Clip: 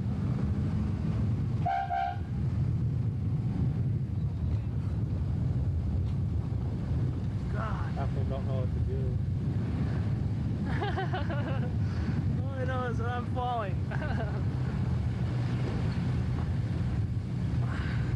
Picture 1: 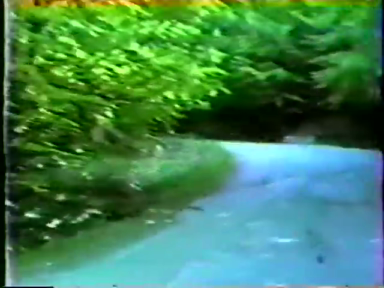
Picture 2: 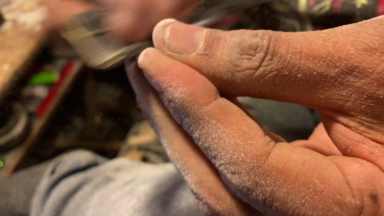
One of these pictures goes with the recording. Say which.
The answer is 1